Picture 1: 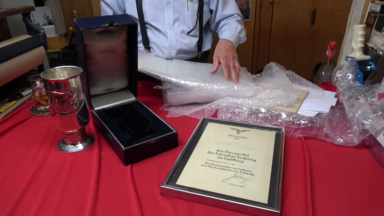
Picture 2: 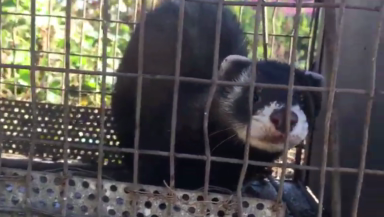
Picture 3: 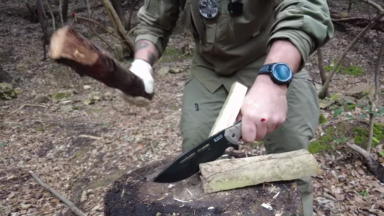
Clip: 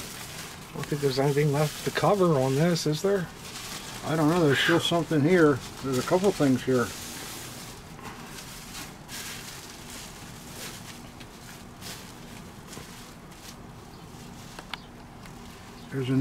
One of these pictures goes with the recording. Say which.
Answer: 1